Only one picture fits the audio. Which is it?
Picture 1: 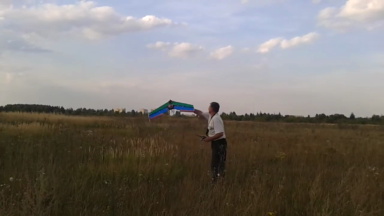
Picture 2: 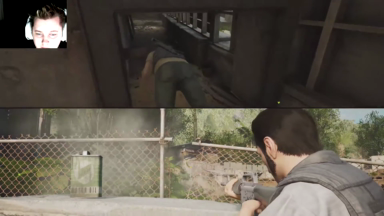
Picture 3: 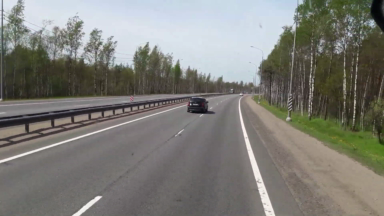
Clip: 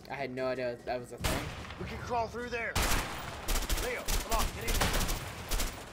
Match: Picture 2